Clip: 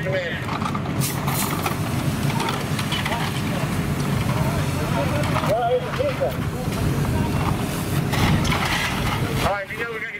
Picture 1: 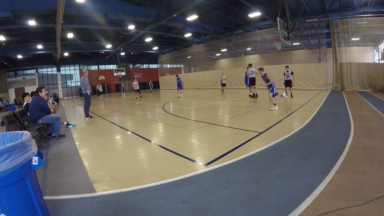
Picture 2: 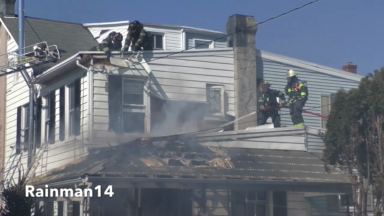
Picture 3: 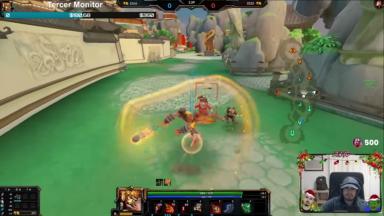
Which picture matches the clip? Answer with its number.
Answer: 2